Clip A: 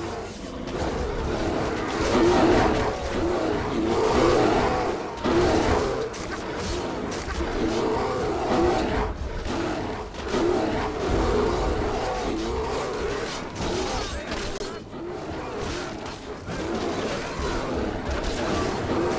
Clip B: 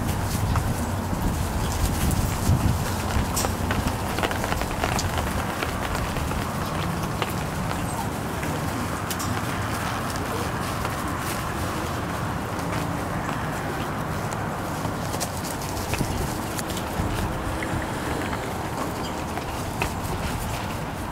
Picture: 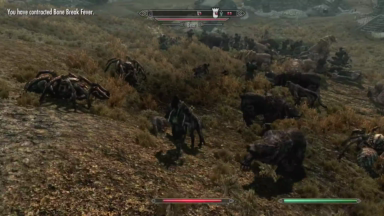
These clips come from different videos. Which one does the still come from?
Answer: A